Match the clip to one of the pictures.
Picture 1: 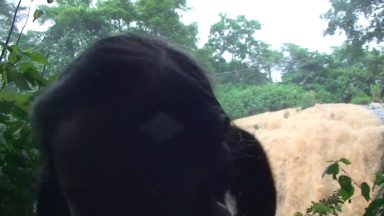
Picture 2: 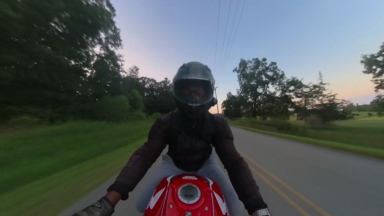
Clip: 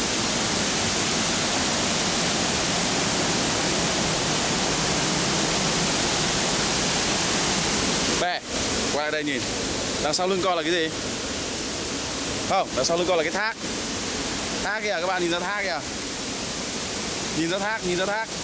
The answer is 1